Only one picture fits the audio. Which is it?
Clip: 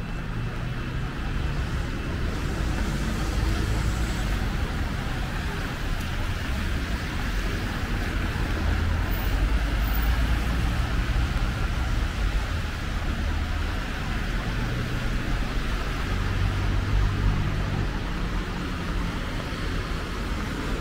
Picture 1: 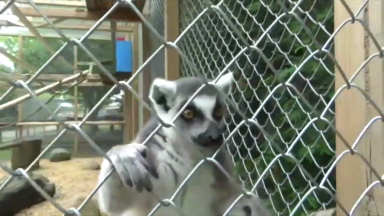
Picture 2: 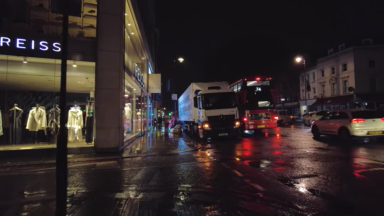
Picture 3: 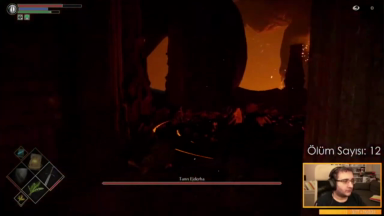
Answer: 2